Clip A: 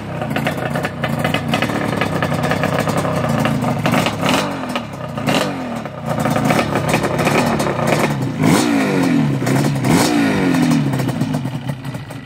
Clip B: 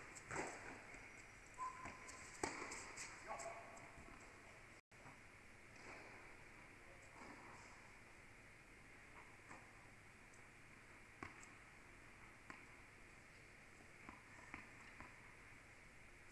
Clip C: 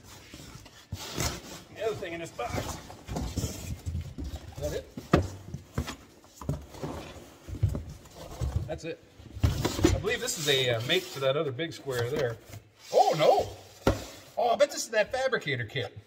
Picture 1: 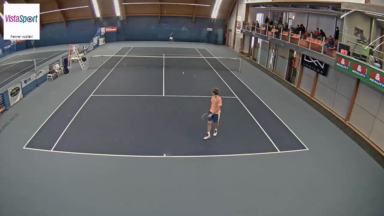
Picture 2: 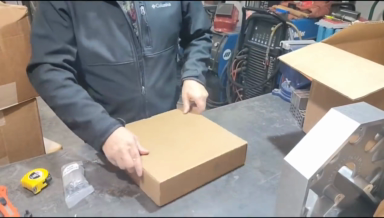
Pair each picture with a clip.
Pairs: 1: B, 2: C